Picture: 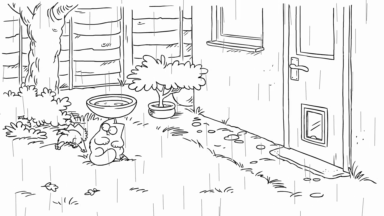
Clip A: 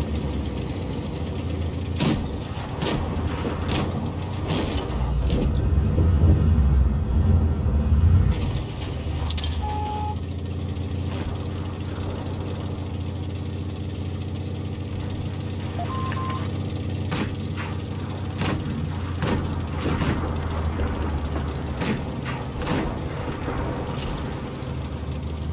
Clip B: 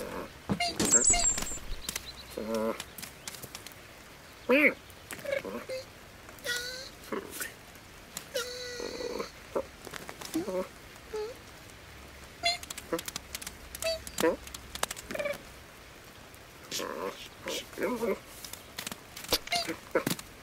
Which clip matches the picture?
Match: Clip B